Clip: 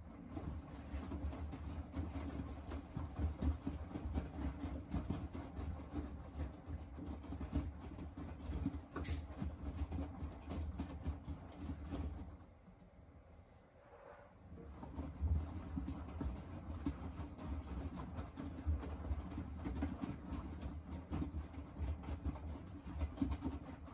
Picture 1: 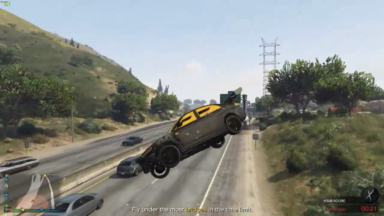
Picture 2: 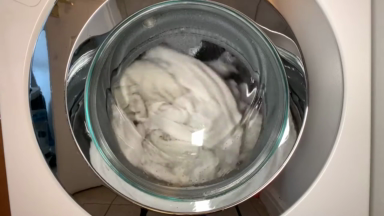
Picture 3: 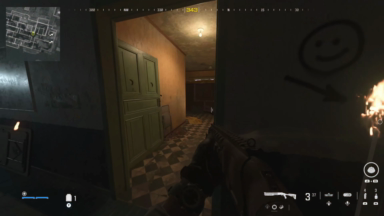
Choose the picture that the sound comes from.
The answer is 2